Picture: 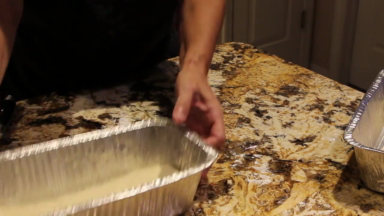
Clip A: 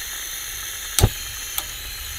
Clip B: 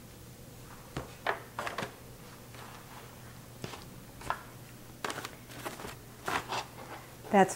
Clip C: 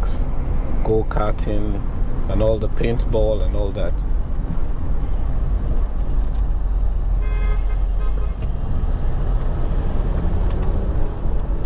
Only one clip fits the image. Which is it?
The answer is B